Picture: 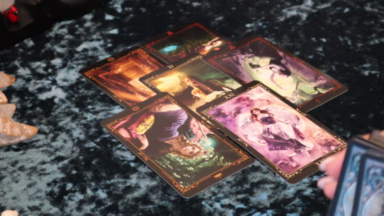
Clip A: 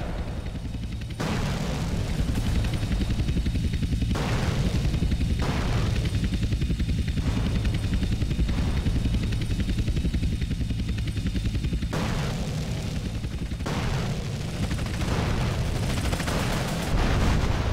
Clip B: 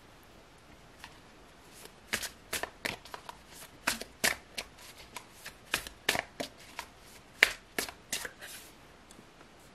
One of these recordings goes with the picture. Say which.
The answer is B